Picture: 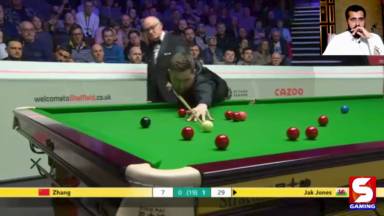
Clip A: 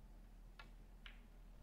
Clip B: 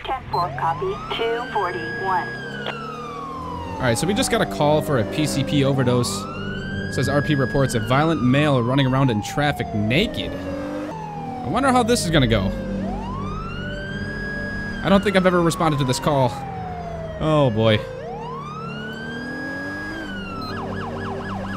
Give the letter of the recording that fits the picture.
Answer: A